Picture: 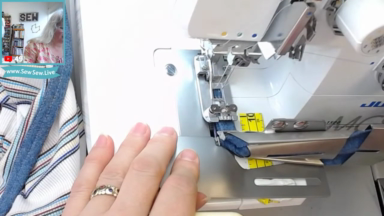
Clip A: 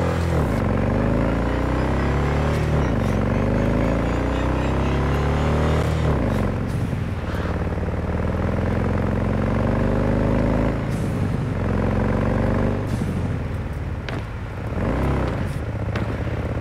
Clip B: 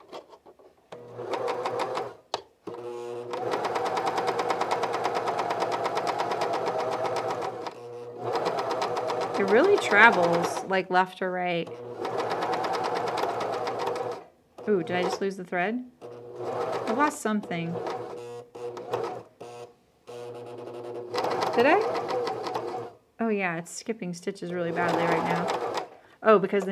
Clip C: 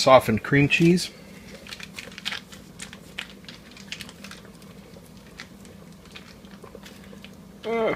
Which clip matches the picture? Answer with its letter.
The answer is B